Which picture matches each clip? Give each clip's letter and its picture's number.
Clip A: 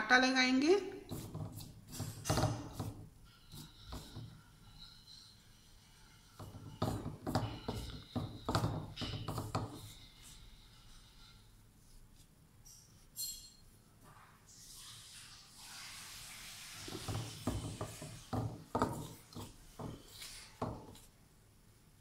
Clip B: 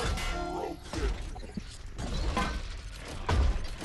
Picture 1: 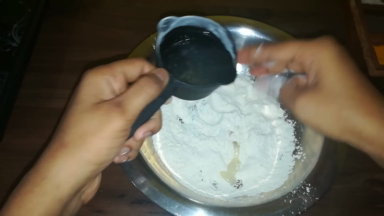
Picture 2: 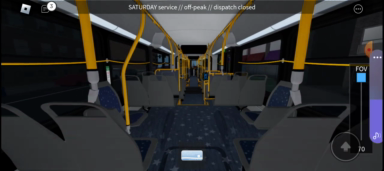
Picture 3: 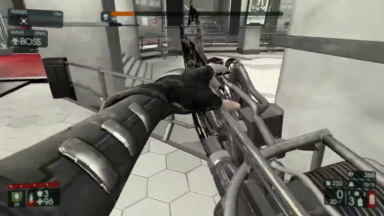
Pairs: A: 1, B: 3